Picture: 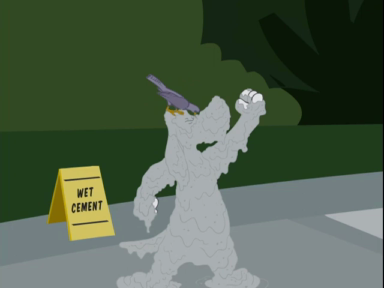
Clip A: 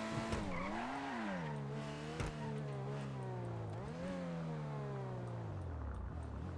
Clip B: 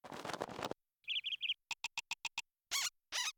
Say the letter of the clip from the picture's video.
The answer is B